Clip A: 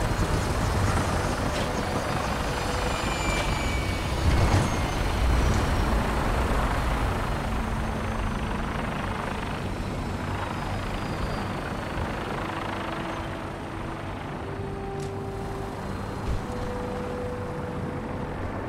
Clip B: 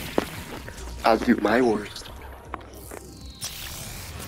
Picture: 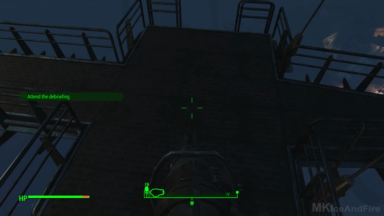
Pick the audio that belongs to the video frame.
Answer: A